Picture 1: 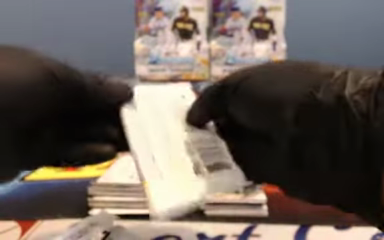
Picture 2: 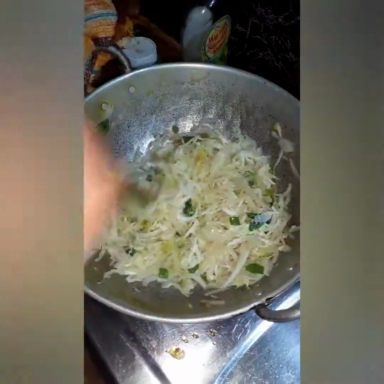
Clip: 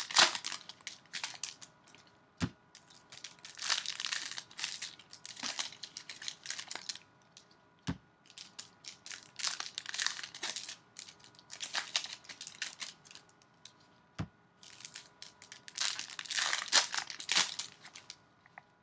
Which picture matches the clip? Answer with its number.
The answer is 1